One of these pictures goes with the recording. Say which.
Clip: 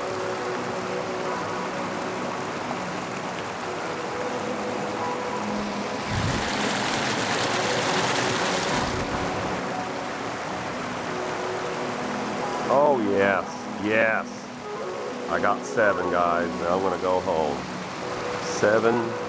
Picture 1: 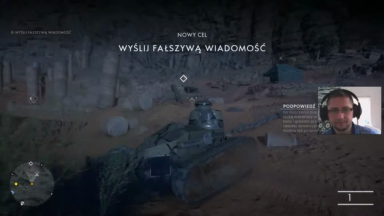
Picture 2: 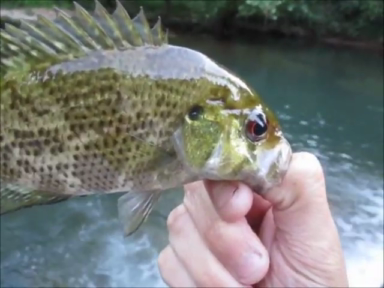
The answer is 2